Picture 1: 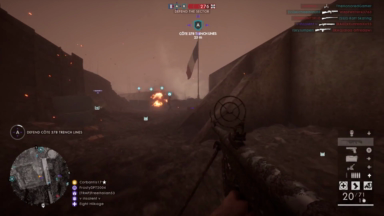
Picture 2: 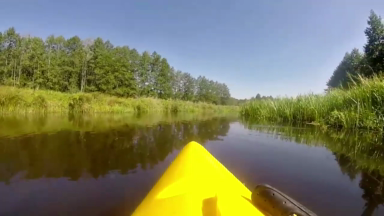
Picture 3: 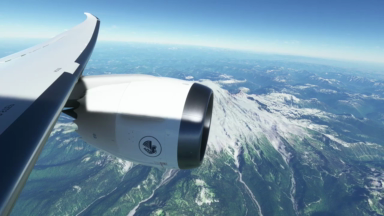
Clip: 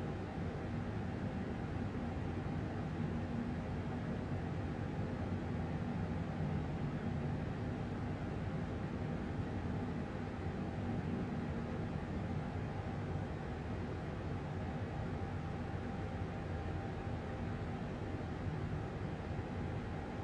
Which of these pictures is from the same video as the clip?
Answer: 3